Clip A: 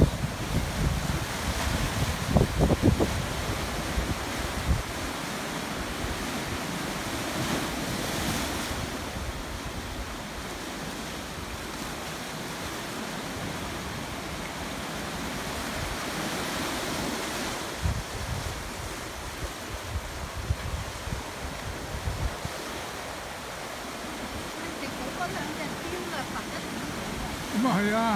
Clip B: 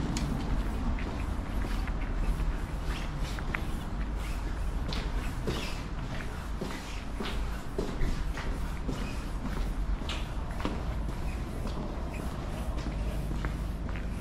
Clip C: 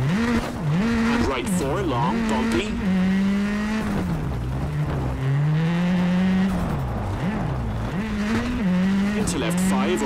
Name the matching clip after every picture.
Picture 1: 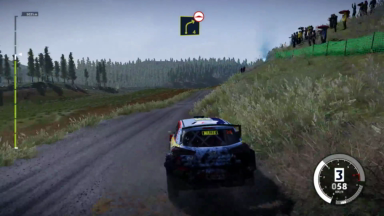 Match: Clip C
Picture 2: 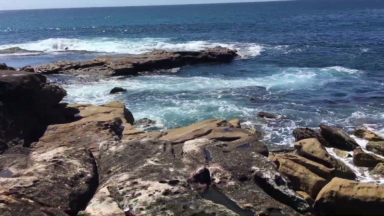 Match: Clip A